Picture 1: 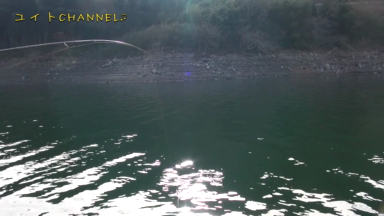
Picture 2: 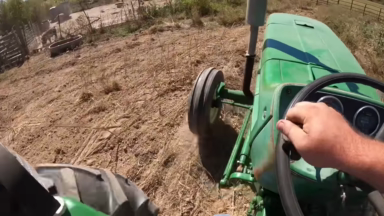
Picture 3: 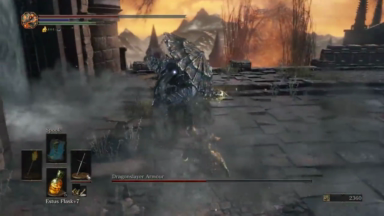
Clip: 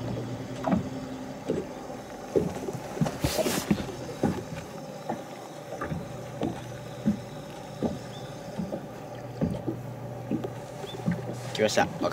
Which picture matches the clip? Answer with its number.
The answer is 1